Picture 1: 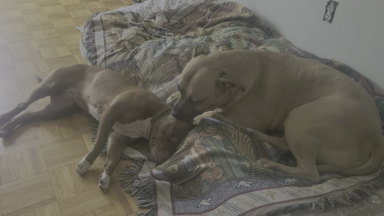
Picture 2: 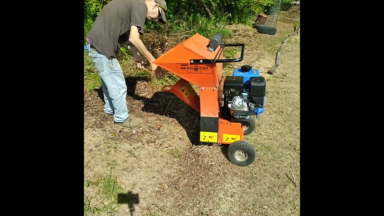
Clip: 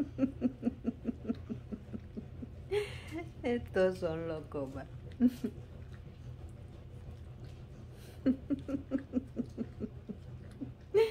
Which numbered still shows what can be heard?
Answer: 1